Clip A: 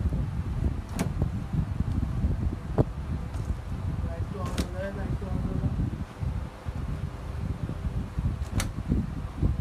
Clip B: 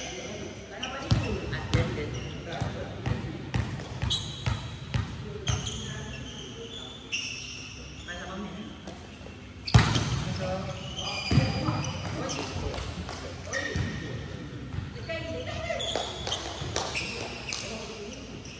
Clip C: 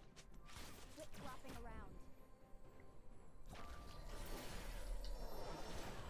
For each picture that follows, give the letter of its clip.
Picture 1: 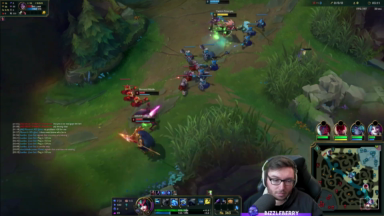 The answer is C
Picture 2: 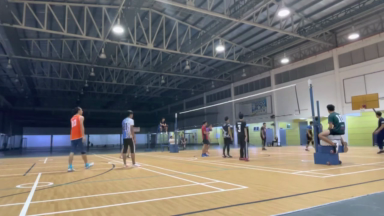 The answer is B